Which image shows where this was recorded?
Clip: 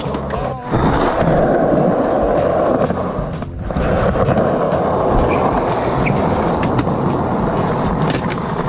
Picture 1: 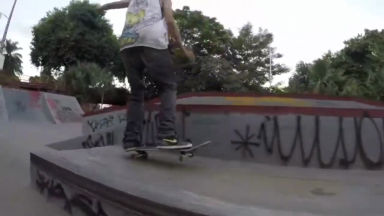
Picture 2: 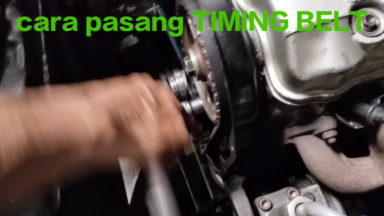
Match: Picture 1